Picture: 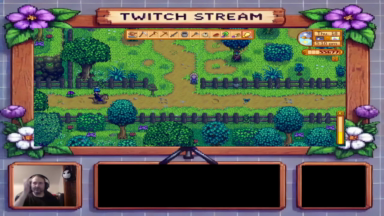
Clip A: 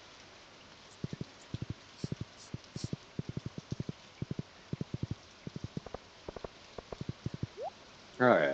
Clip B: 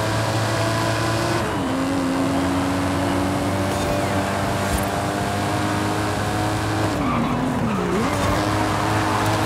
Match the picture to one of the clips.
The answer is A